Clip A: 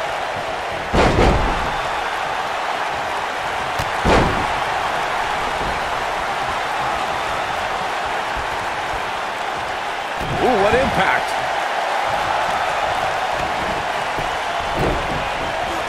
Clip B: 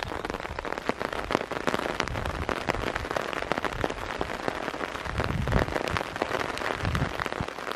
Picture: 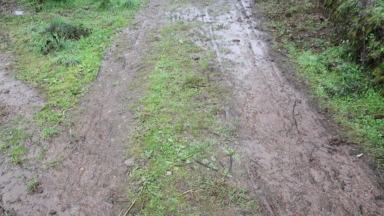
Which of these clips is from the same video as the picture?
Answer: B